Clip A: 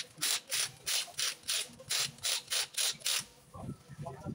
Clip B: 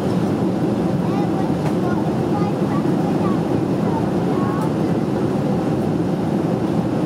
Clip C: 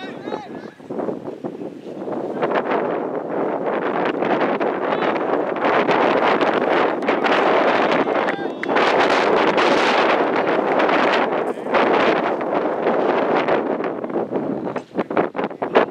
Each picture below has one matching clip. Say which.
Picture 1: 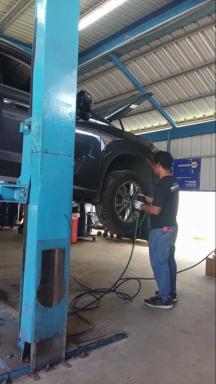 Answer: A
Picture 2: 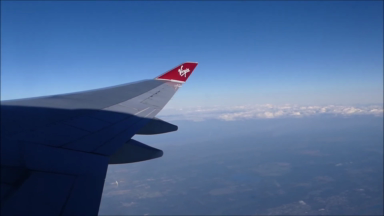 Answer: B